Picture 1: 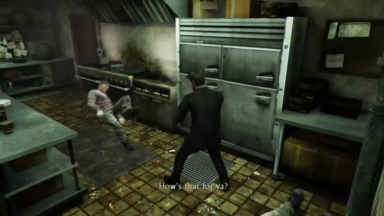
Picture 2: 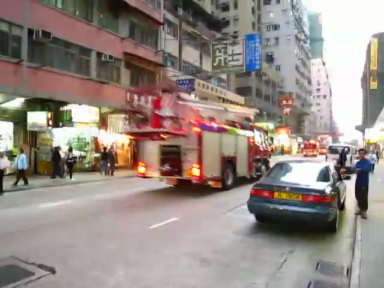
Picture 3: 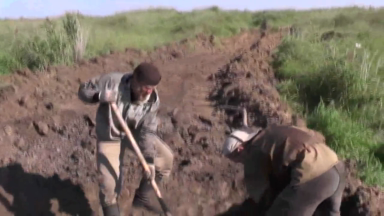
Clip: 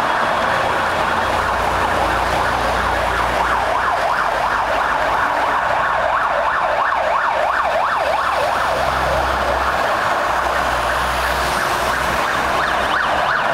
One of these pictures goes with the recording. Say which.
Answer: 2